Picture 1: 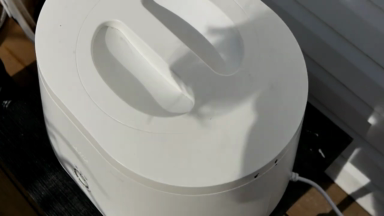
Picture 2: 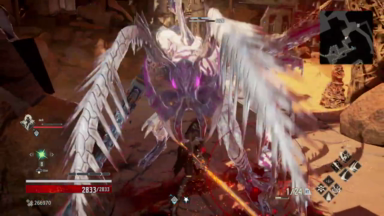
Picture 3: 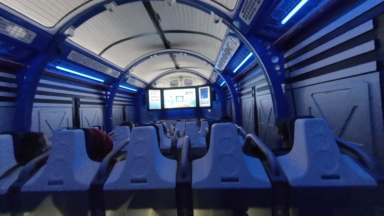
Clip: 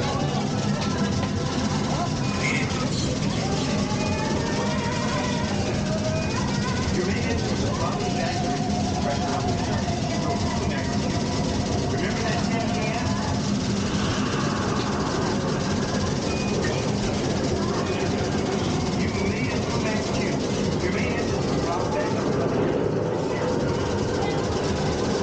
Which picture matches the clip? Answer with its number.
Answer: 3